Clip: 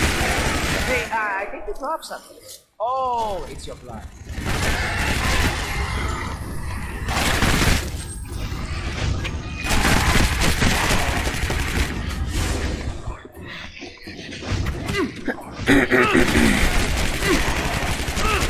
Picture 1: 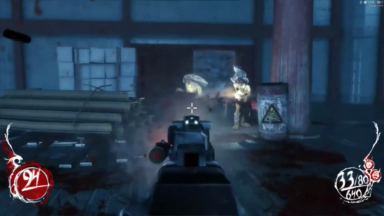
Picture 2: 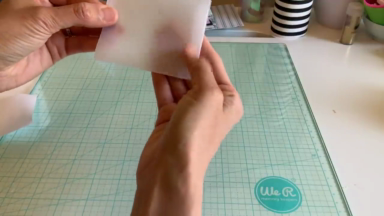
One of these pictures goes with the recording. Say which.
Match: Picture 1